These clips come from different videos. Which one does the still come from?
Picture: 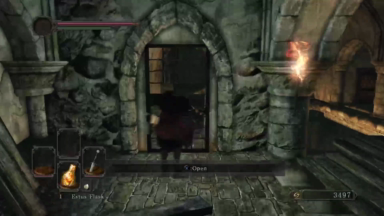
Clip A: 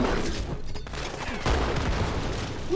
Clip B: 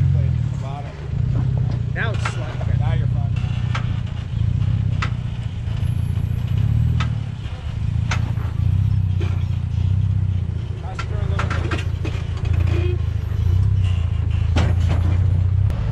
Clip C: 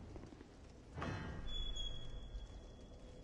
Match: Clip C